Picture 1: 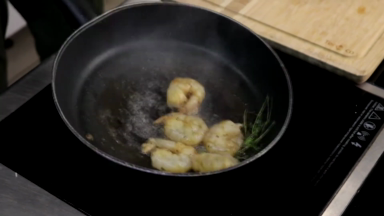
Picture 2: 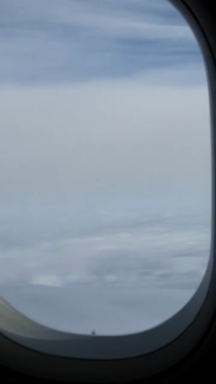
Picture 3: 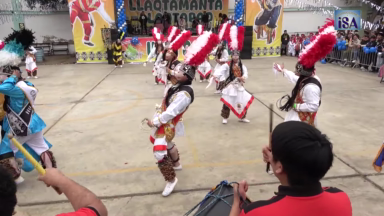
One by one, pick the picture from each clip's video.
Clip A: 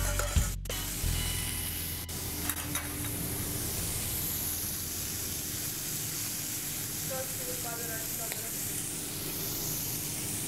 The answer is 1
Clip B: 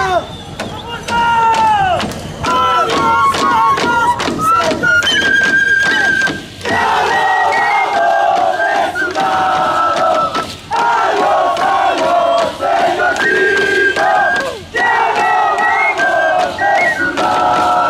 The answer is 3